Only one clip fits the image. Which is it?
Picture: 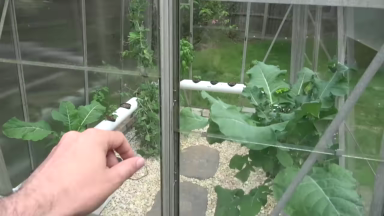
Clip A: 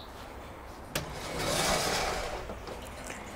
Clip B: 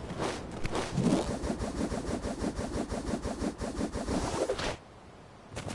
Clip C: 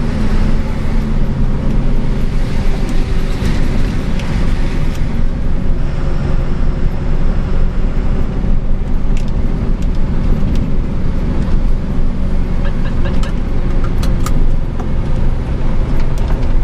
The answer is A